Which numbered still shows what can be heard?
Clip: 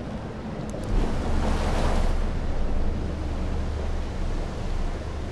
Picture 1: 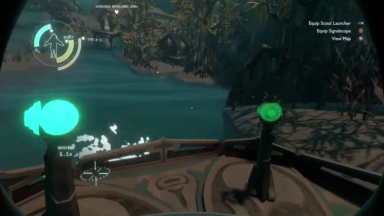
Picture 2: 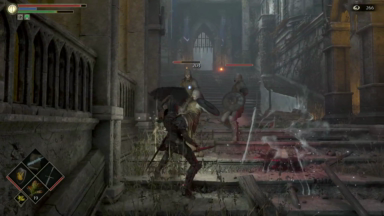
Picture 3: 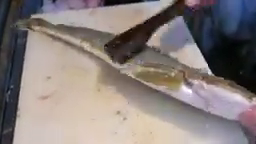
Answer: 1